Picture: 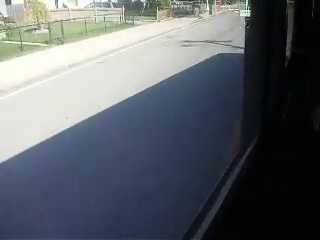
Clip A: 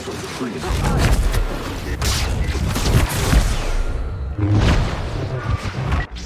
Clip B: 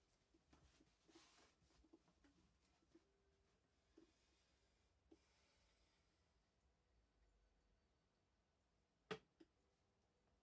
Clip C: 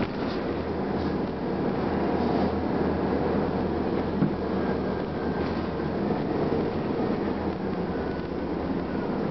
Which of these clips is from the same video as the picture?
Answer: C